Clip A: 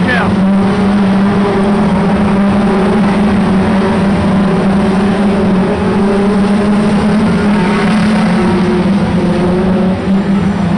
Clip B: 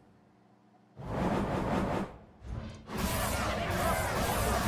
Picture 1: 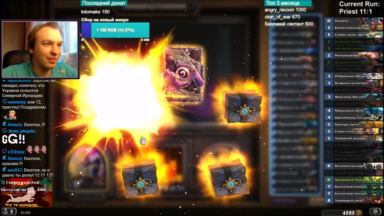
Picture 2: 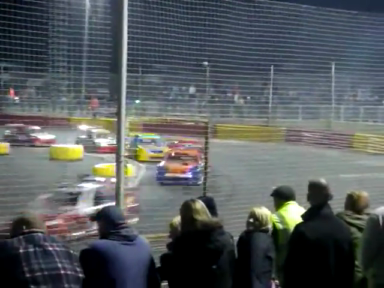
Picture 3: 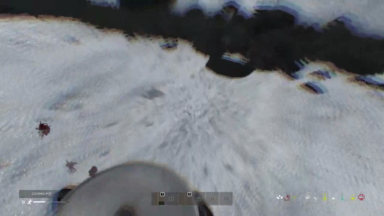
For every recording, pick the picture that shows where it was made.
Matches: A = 2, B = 1